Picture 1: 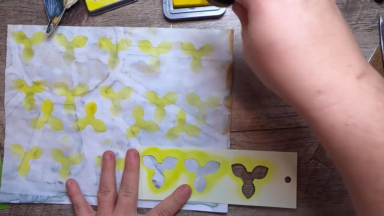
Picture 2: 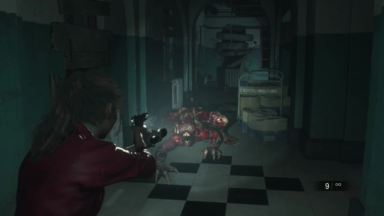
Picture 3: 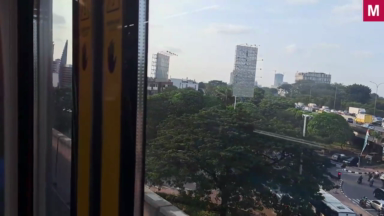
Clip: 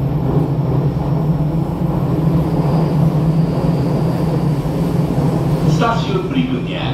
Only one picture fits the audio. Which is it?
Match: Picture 3